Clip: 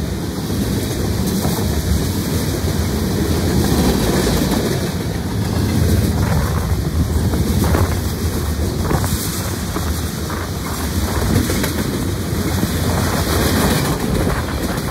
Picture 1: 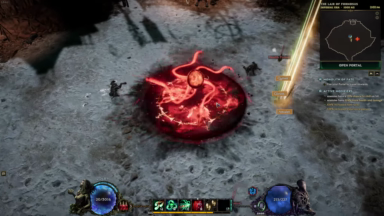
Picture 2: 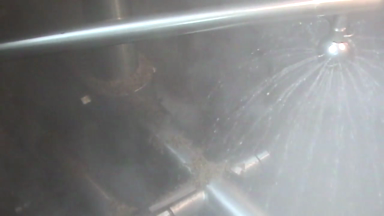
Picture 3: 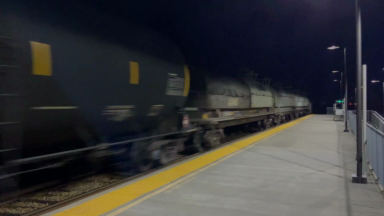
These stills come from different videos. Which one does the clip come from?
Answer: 3